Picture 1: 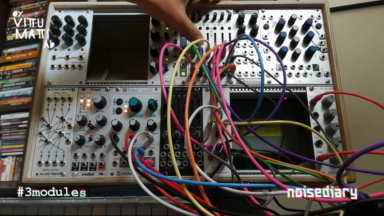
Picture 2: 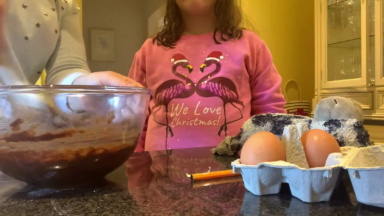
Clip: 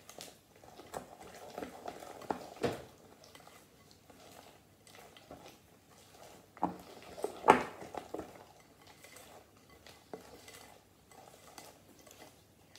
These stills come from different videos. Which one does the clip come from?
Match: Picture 2